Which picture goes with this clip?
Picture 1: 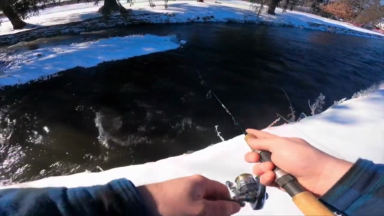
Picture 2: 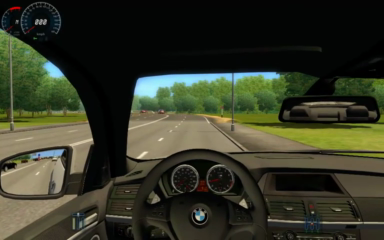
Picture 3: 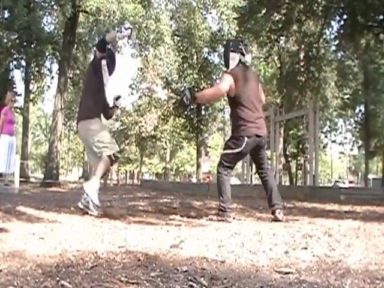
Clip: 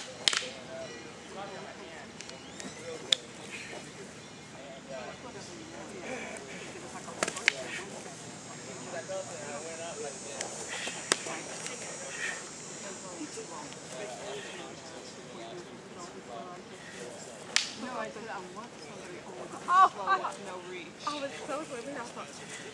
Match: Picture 3